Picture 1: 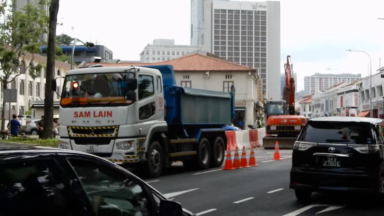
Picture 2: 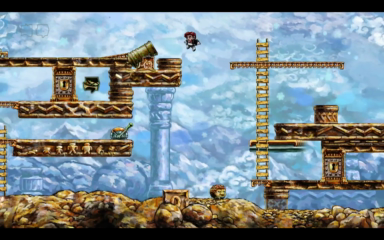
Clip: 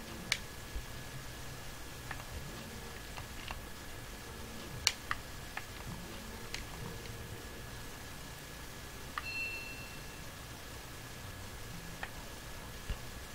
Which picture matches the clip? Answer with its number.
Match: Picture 2